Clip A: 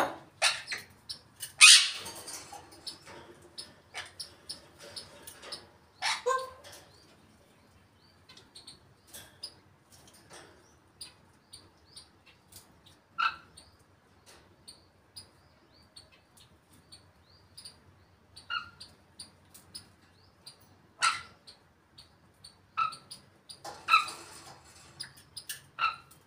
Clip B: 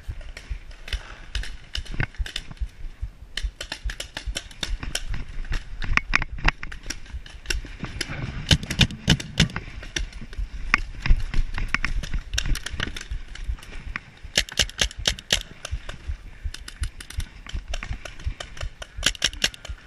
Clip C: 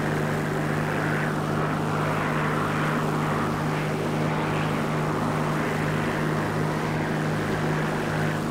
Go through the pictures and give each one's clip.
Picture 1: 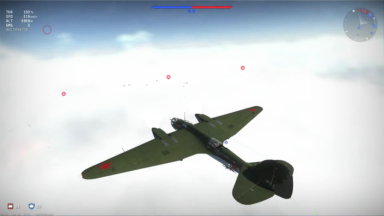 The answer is C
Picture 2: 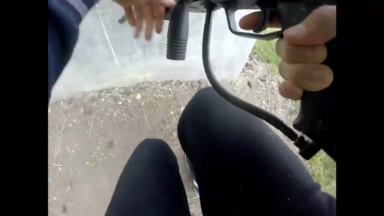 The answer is B